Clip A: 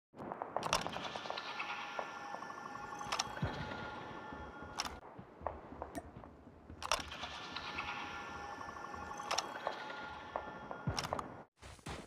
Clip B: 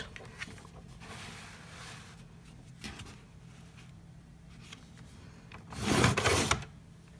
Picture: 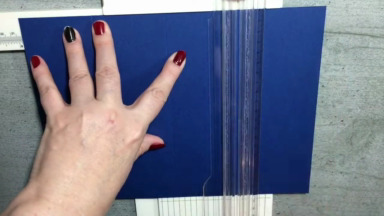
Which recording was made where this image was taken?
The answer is B